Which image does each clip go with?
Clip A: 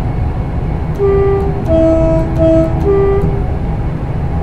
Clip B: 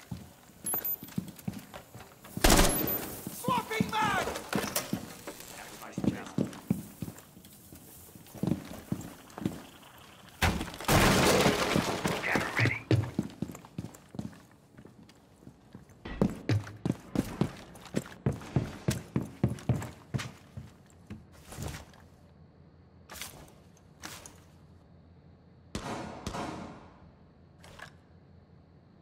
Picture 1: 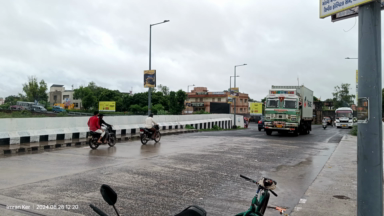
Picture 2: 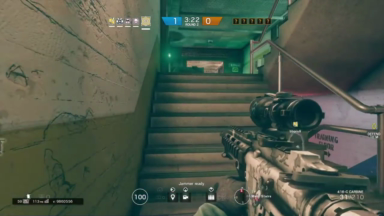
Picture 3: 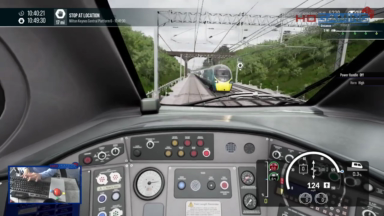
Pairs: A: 3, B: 2